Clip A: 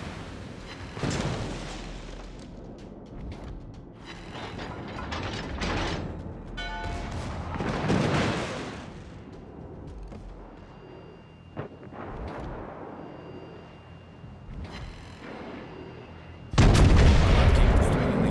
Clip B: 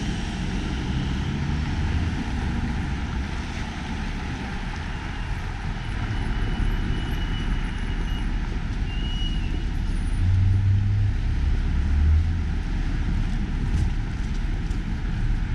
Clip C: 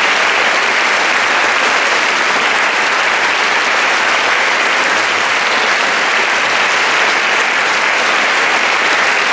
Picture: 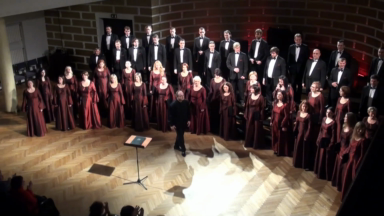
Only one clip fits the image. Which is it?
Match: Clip C